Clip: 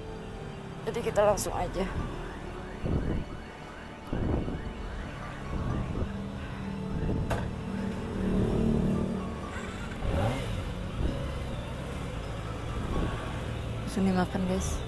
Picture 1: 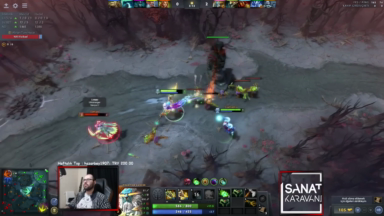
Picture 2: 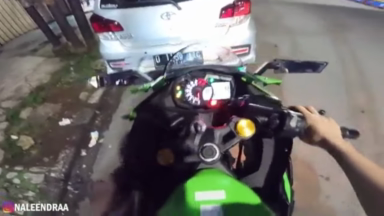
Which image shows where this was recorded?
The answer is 2